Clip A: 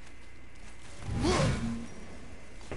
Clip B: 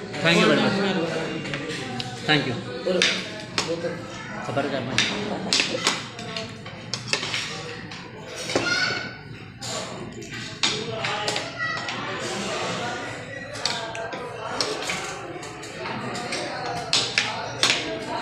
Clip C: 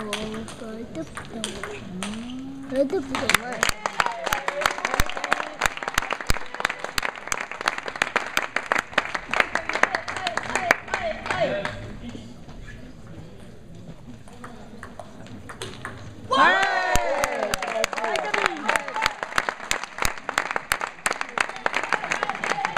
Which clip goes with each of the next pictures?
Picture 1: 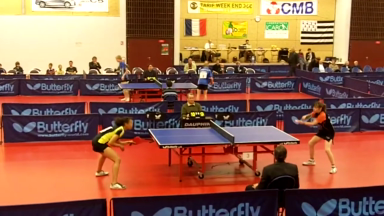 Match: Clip C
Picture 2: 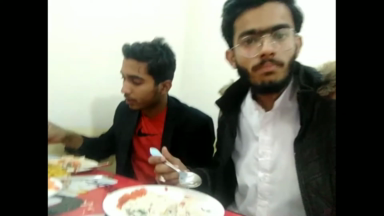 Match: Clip B